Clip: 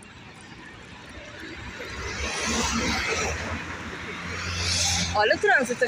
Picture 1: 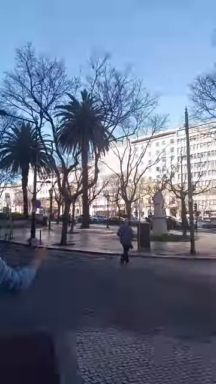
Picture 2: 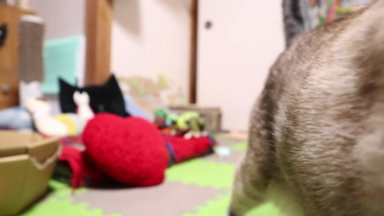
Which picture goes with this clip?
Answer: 1